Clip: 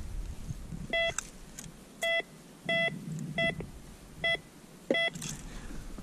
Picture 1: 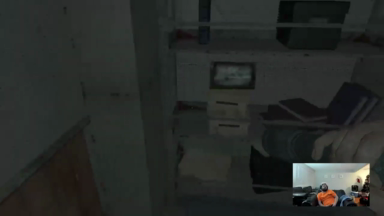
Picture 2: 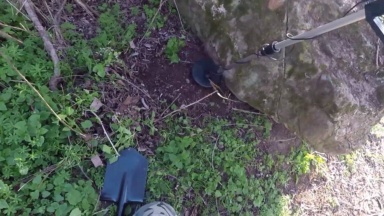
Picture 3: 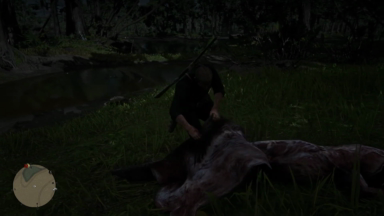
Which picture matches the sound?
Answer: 2